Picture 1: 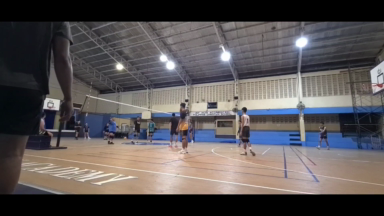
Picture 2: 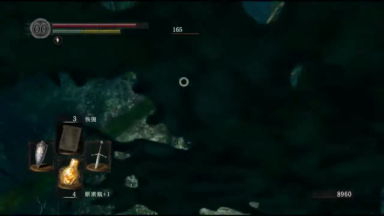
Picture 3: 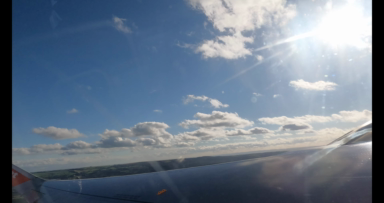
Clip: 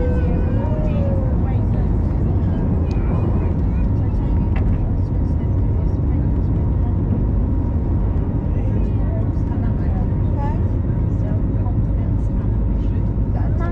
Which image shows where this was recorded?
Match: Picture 3